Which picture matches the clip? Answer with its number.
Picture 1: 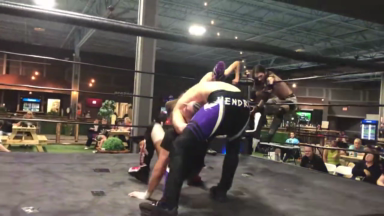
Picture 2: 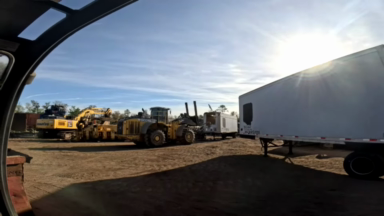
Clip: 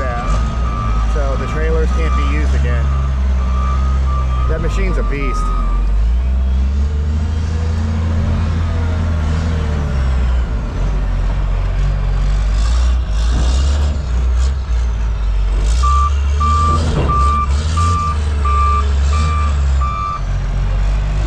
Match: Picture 2